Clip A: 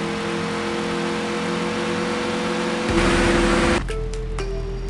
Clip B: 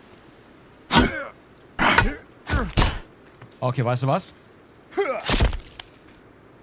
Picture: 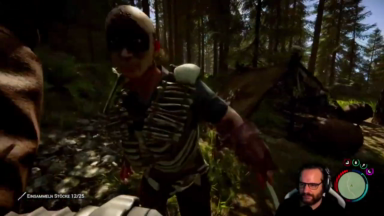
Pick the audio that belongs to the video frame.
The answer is B